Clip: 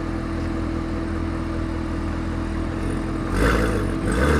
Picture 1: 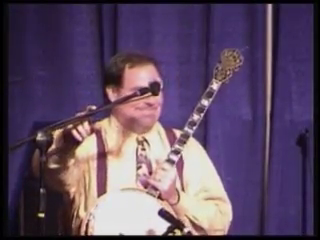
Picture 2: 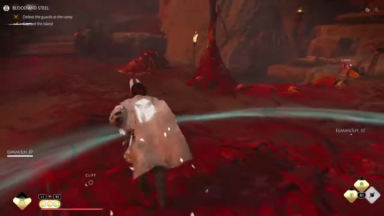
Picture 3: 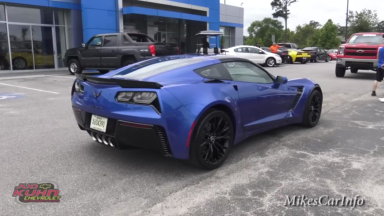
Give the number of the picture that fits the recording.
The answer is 3